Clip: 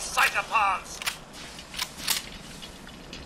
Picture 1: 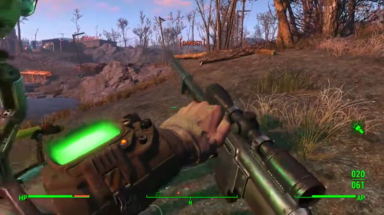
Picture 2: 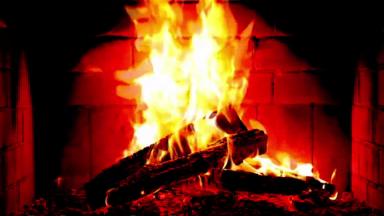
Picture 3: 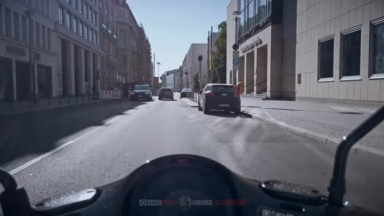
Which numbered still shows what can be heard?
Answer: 1